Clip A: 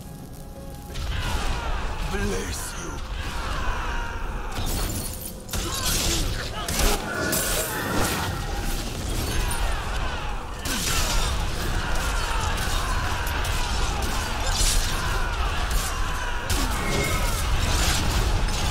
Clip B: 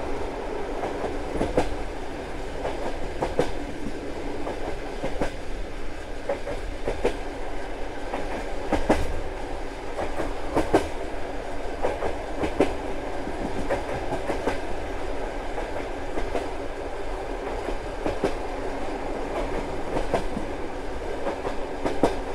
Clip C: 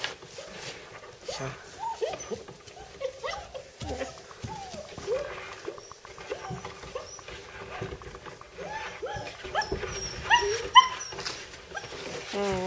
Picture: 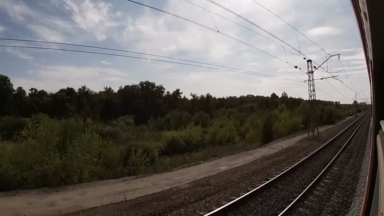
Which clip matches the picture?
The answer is B